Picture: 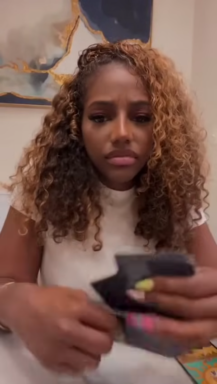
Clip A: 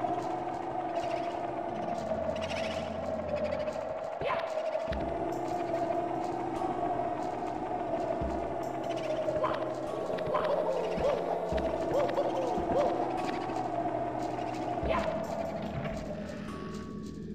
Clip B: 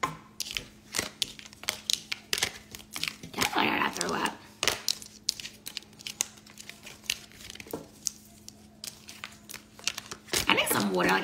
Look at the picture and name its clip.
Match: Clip B